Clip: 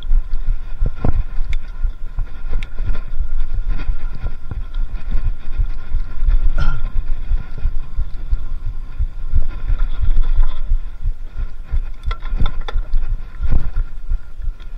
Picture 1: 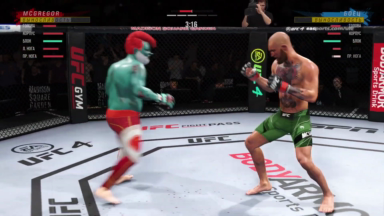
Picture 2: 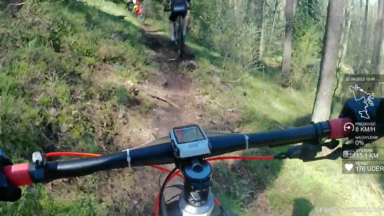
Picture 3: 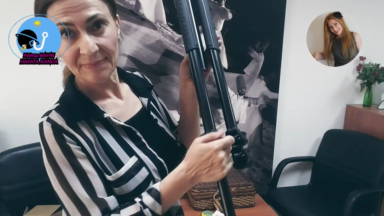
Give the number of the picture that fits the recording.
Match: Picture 2